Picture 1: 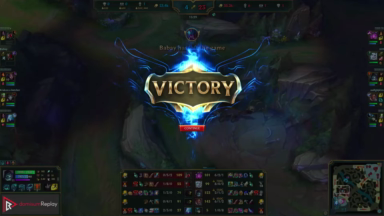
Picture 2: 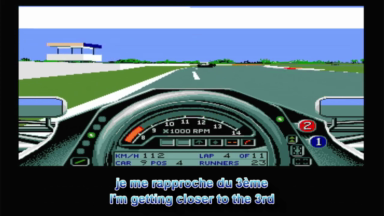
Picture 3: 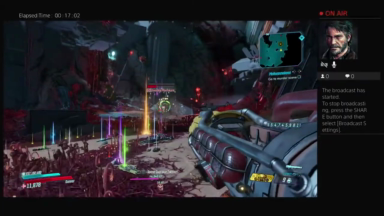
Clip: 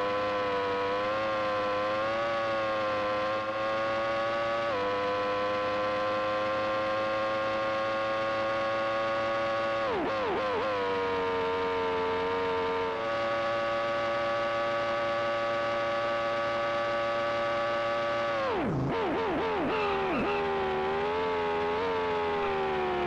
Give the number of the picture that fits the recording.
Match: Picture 2